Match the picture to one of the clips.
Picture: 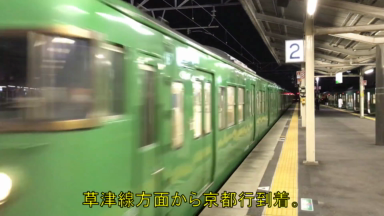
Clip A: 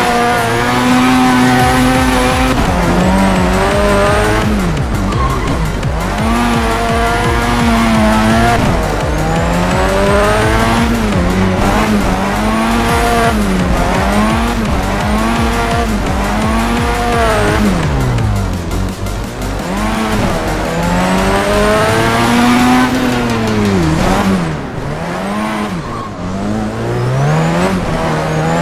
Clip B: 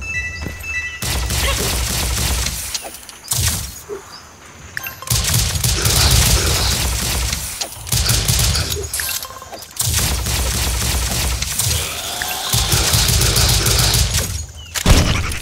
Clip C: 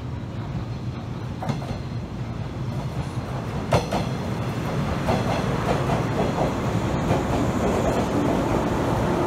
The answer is C